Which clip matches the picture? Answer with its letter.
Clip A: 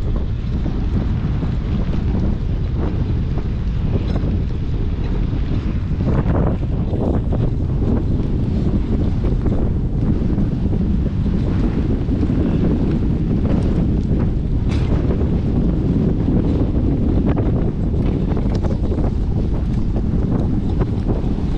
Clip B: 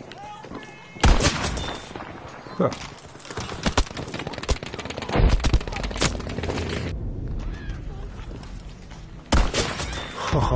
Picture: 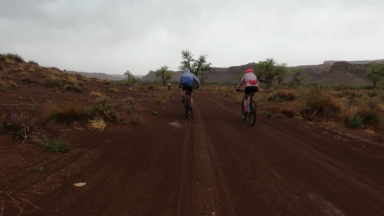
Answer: A